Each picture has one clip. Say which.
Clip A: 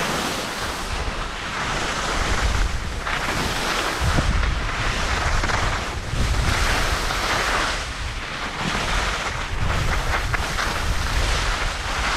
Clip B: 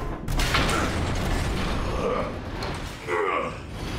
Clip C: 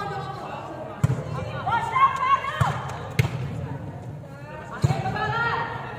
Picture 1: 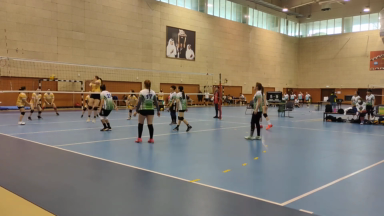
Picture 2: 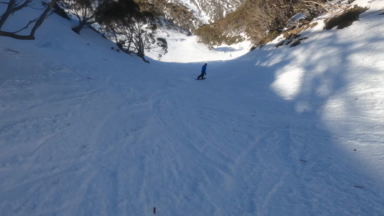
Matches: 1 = C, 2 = A